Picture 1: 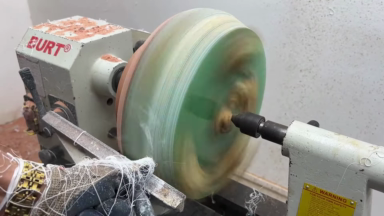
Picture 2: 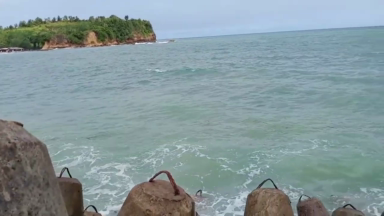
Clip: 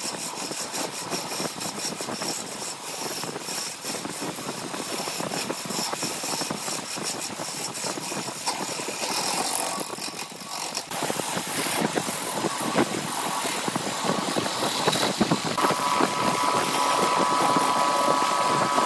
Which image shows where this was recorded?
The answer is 1